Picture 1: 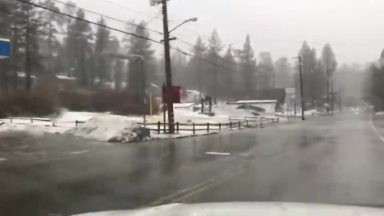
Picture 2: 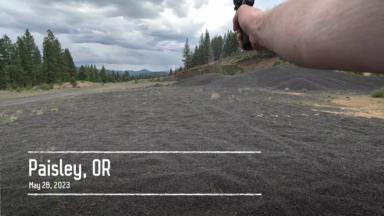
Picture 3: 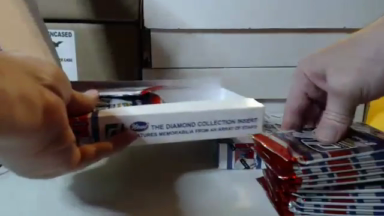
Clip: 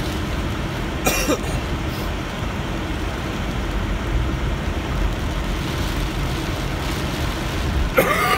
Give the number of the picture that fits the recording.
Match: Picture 1